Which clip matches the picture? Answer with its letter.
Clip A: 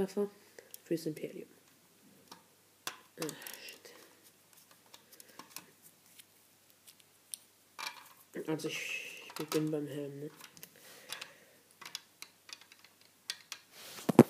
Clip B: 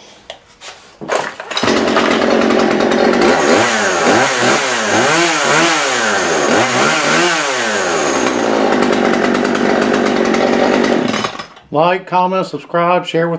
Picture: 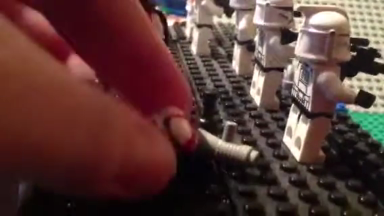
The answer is A